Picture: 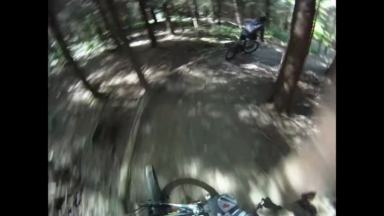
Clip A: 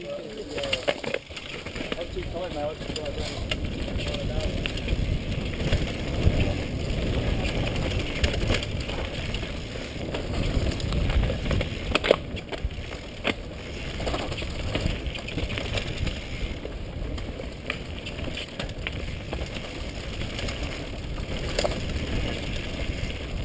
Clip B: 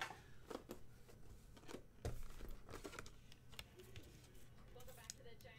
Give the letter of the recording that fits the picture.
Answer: A